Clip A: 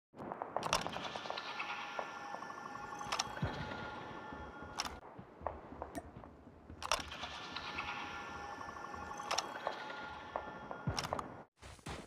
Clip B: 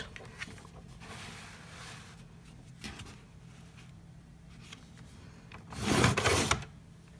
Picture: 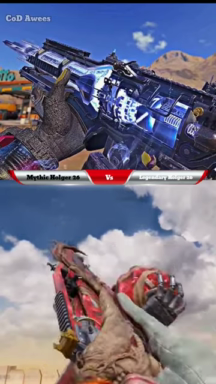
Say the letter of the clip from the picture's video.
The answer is A